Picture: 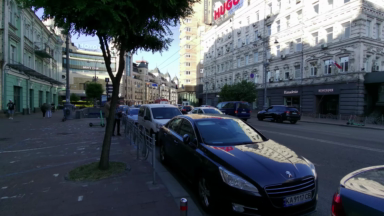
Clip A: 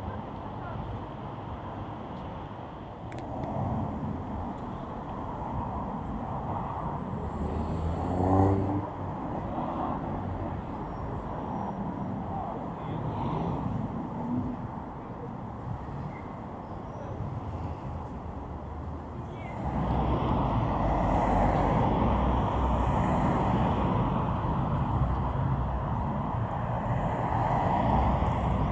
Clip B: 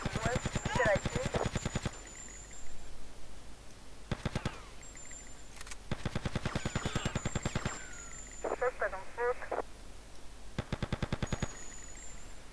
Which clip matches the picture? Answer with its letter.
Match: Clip A